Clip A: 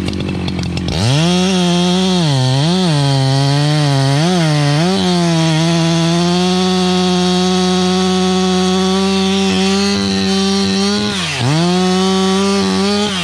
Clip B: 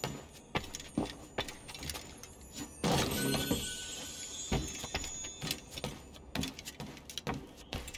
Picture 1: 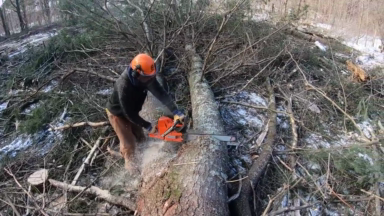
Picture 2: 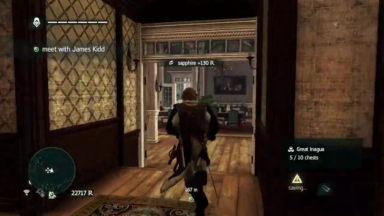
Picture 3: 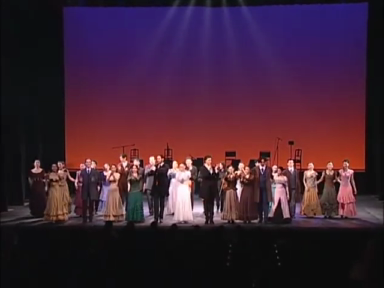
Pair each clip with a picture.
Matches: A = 1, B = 2